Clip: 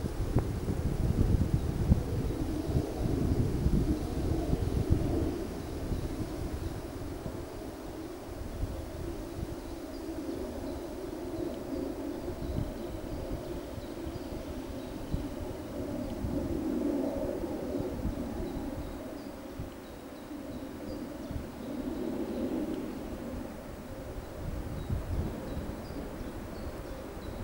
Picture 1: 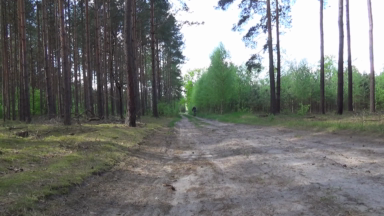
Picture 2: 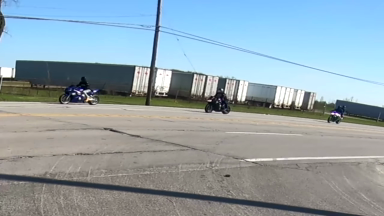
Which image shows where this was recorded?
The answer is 1